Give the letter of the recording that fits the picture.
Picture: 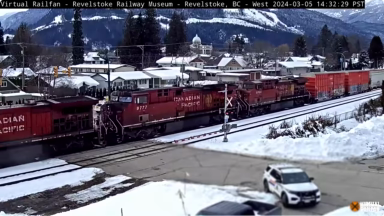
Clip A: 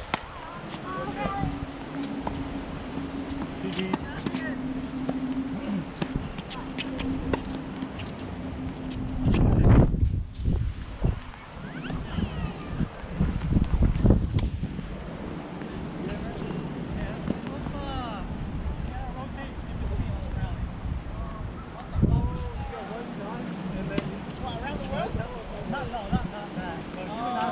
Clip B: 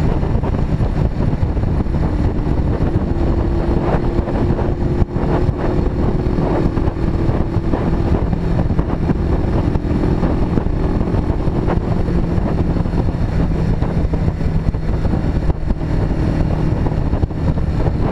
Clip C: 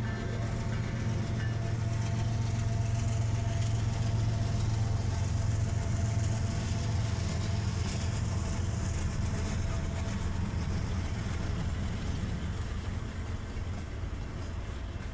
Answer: C